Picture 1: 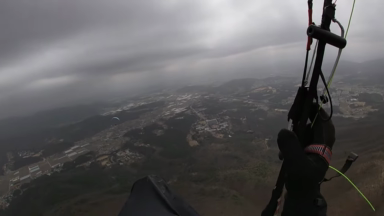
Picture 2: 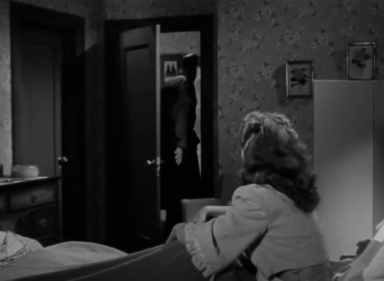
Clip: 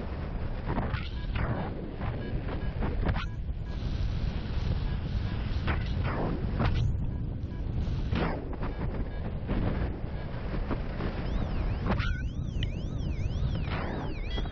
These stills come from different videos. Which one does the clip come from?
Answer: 1